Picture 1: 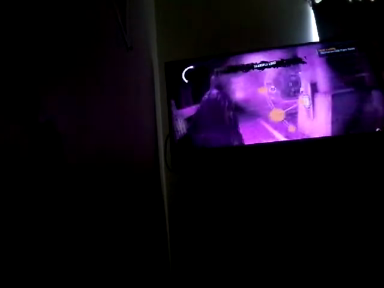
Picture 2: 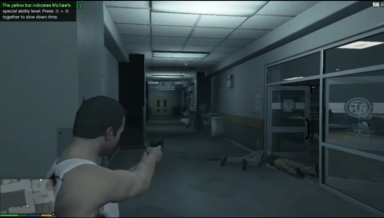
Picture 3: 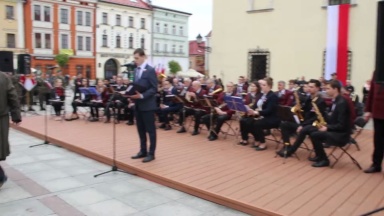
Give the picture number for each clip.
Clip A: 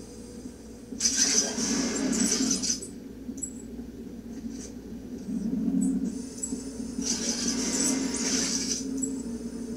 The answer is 1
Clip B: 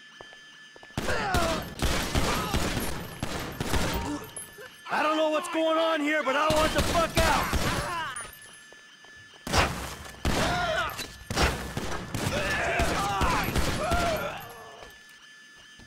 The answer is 2